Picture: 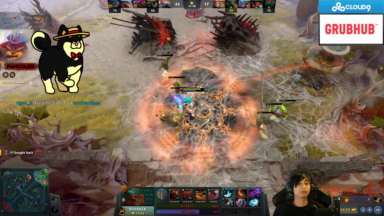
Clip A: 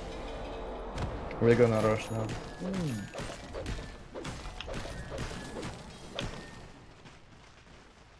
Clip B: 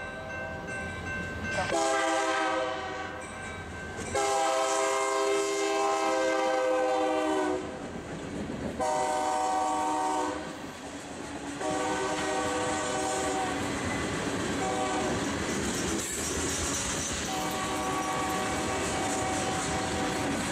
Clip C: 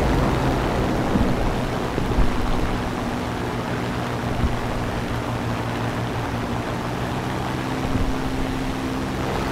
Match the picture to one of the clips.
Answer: A